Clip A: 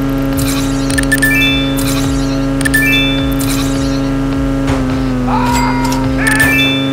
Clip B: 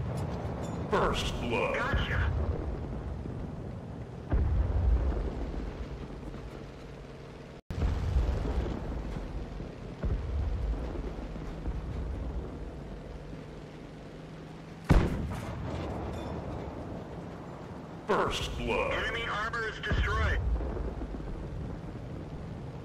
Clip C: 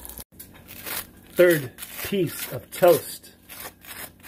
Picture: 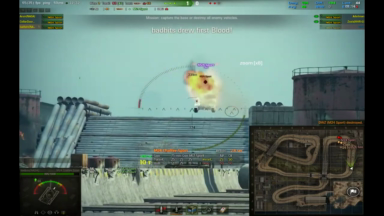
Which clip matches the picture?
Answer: B